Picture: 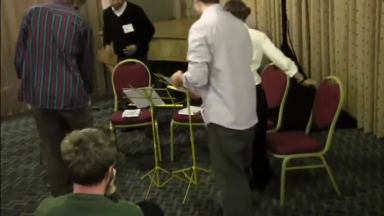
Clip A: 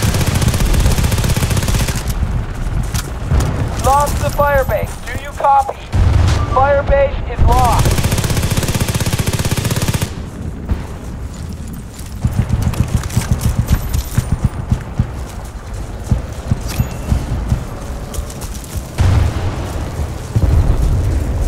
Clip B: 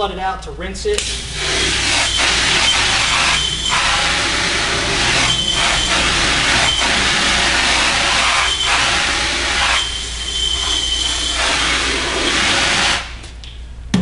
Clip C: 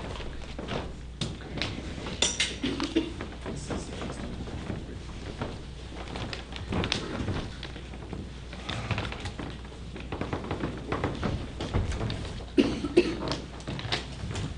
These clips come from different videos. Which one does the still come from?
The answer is C